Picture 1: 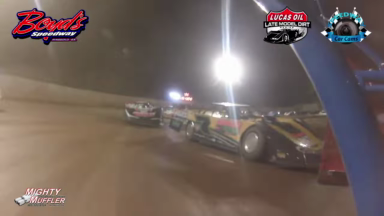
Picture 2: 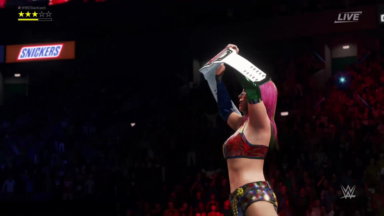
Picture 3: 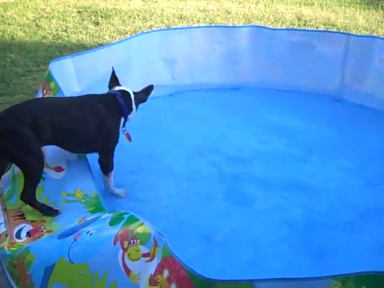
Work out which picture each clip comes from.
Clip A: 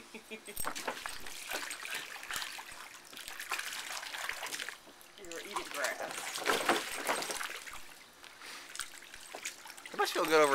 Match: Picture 3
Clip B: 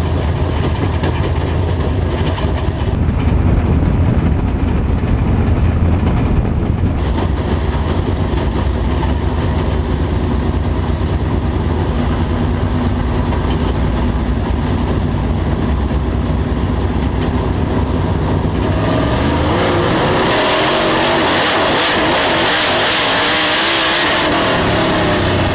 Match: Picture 1